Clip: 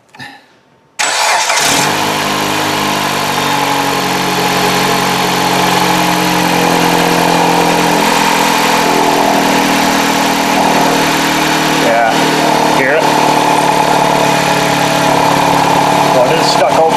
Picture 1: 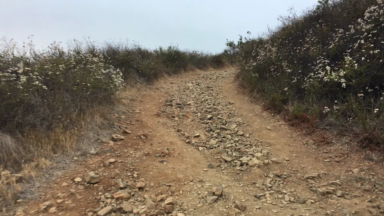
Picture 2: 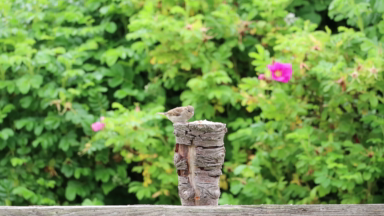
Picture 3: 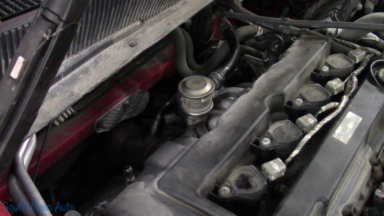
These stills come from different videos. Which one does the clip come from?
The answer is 3